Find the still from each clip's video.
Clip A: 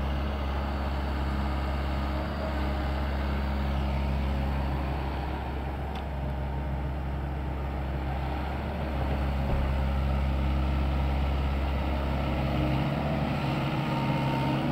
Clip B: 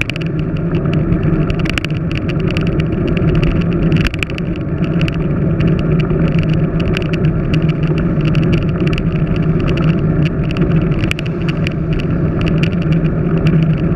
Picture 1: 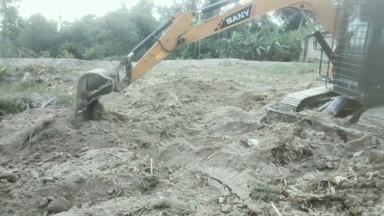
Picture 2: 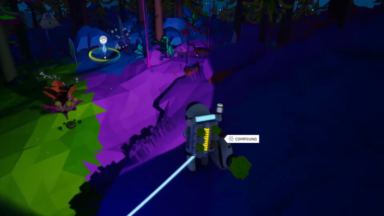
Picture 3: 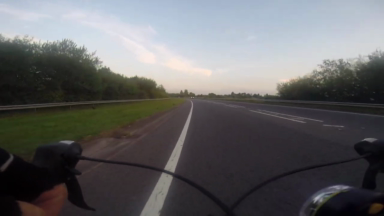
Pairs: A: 1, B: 3